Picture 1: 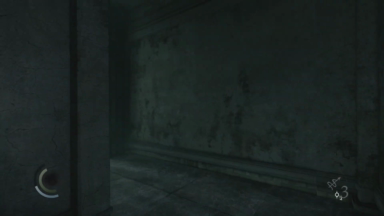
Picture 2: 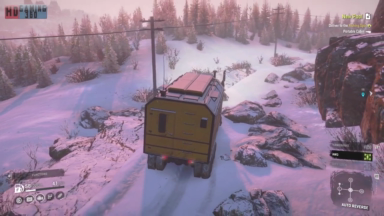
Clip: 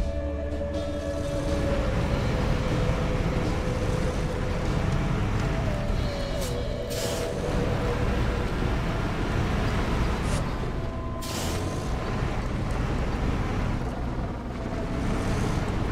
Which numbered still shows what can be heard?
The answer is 2